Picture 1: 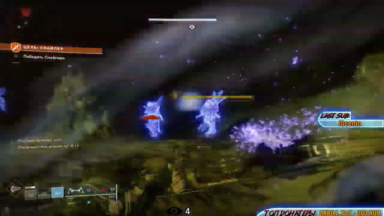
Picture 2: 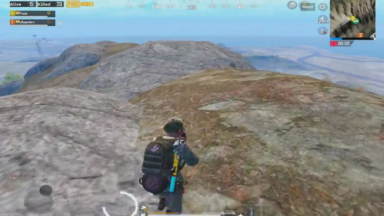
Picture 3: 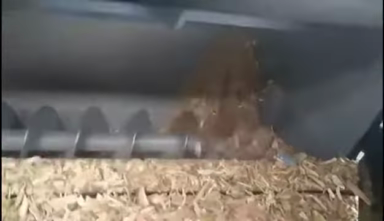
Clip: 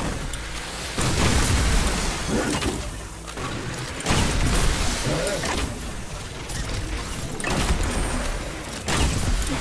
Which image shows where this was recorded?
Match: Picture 1